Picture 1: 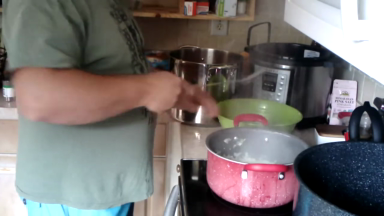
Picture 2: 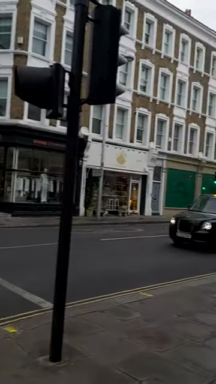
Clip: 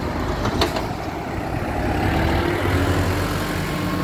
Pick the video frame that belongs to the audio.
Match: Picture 2